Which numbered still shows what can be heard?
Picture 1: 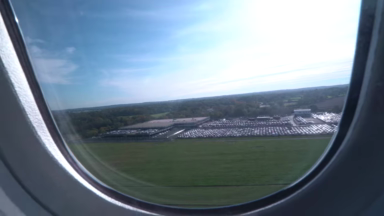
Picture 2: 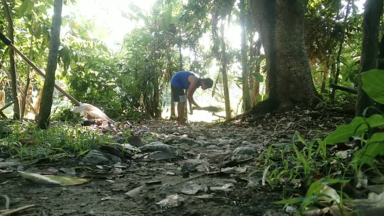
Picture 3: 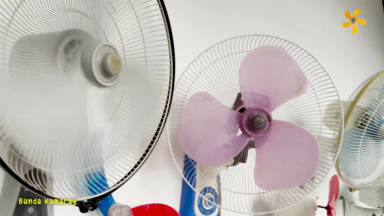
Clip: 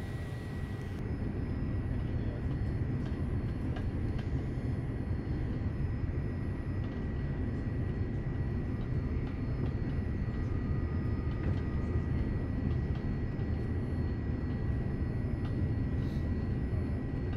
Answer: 1